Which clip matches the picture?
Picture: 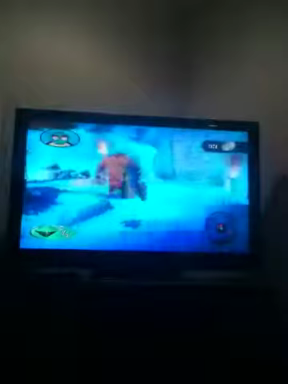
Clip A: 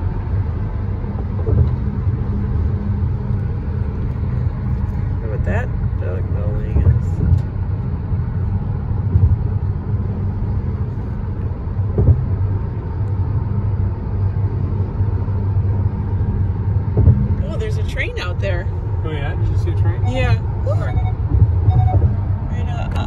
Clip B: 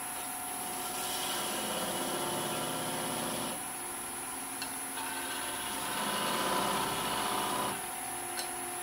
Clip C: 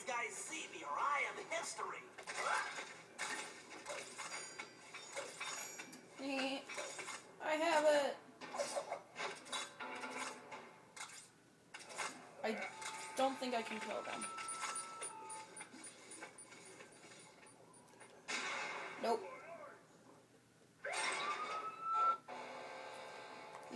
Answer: C